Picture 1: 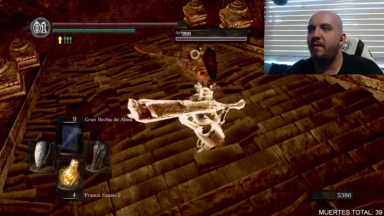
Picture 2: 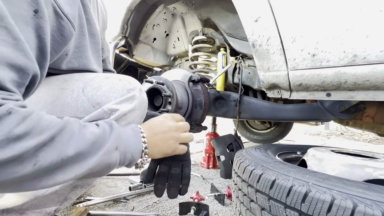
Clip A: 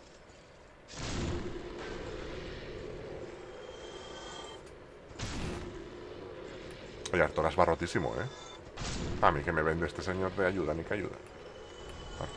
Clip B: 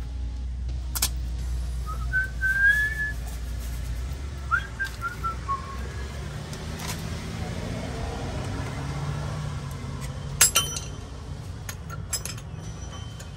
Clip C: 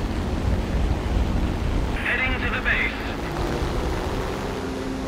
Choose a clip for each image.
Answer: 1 A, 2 B